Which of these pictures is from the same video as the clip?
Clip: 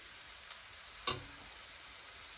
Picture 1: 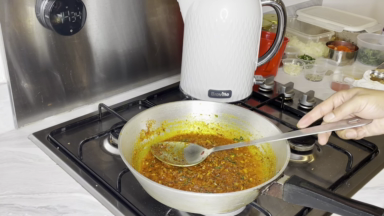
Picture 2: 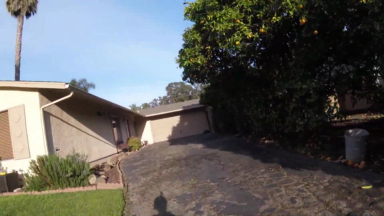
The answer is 1